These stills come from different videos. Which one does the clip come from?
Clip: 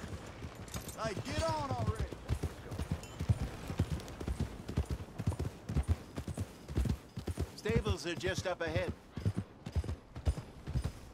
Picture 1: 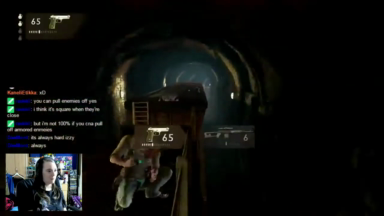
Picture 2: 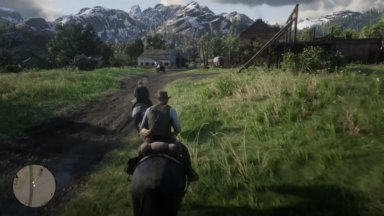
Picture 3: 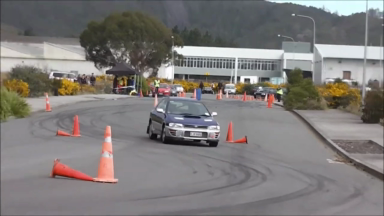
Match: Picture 2